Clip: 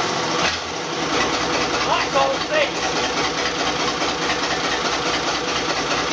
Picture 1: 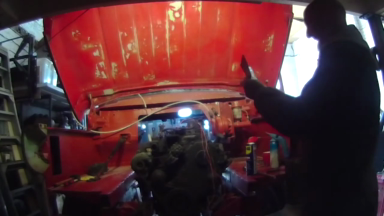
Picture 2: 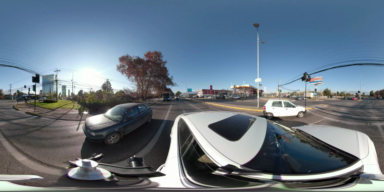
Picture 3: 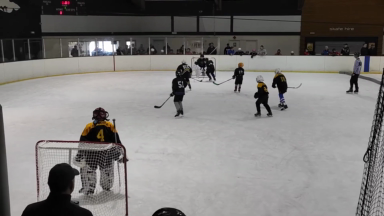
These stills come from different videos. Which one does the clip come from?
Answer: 1